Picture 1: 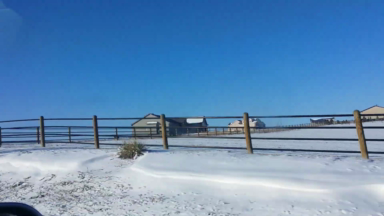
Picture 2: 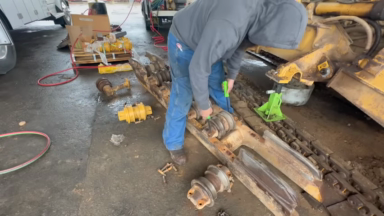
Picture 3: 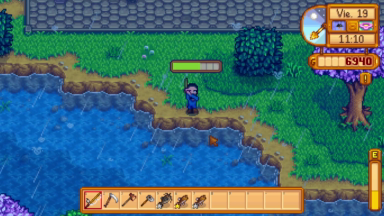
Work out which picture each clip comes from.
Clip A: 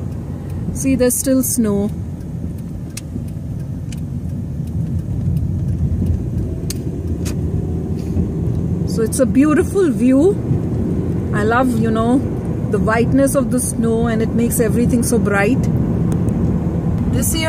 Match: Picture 1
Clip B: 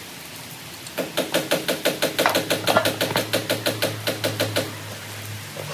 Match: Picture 2